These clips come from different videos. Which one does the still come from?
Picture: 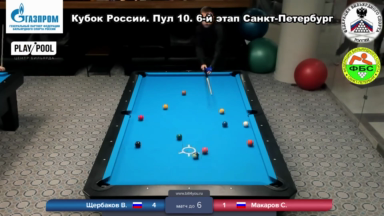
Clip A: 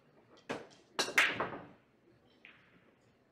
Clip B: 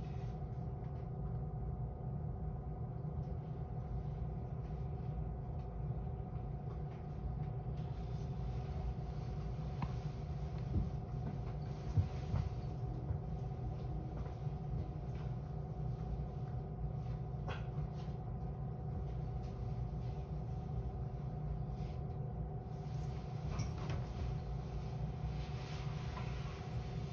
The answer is A